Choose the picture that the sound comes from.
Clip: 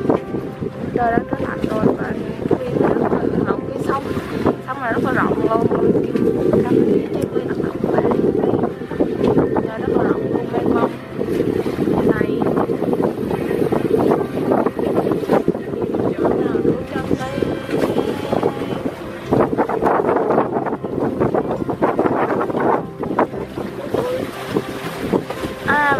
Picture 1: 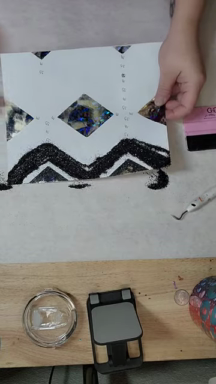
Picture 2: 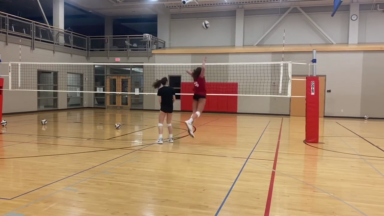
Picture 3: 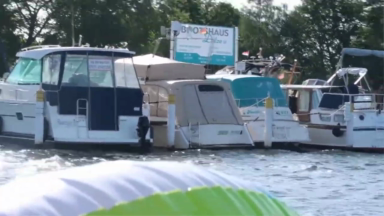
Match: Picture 3